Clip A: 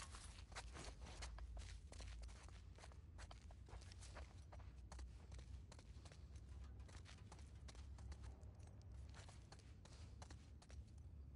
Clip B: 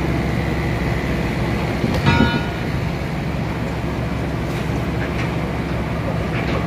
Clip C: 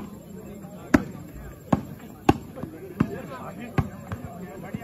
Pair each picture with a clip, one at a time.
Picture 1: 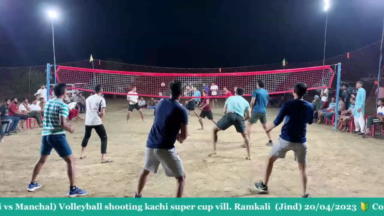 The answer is C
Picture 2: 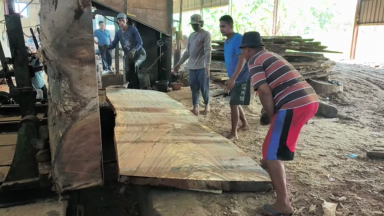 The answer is B